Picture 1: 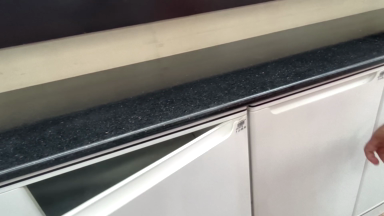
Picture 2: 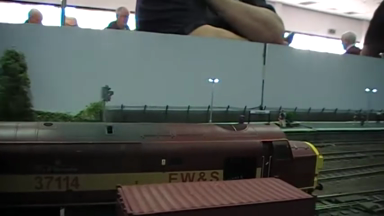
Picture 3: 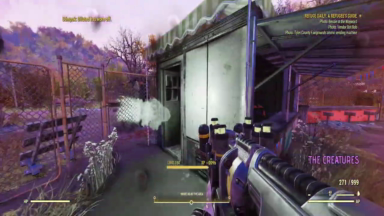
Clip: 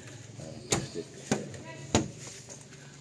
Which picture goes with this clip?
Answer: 1